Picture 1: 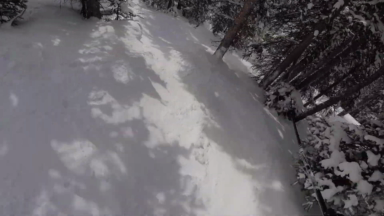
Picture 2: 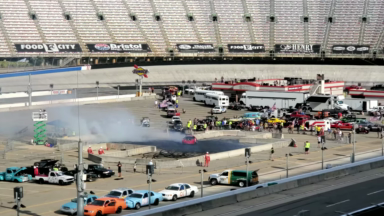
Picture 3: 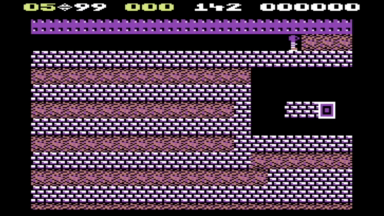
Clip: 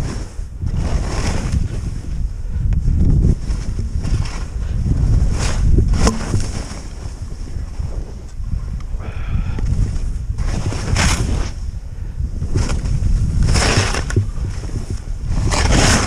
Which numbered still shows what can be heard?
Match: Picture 1